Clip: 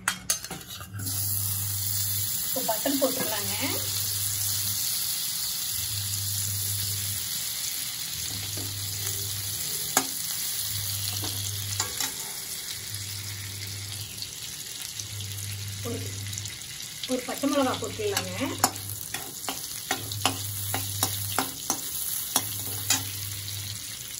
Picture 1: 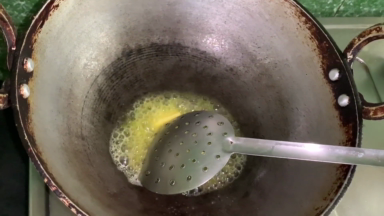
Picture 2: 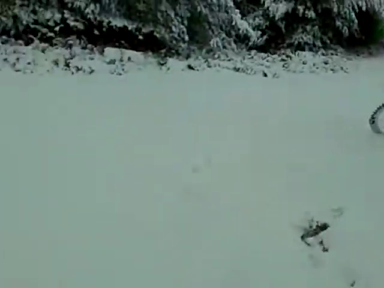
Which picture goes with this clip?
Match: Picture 1